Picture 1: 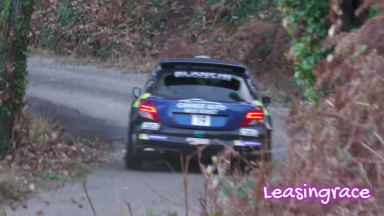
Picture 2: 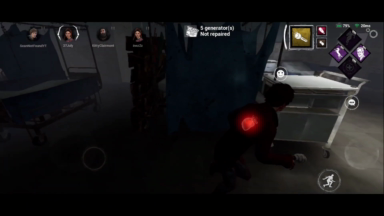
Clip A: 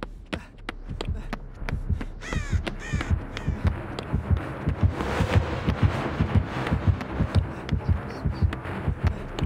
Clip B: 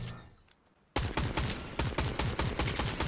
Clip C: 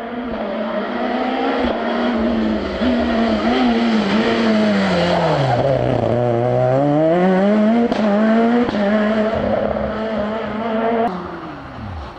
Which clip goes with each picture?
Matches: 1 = C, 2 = A